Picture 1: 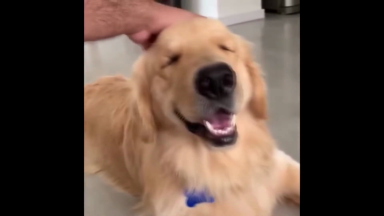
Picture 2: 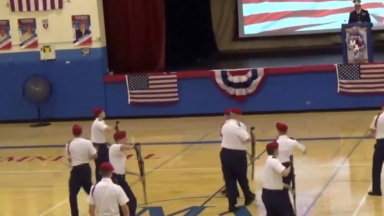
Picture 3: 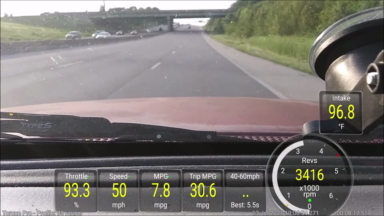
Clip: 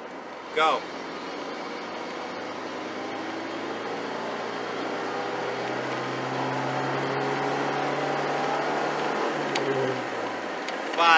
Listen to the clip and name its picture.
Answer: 3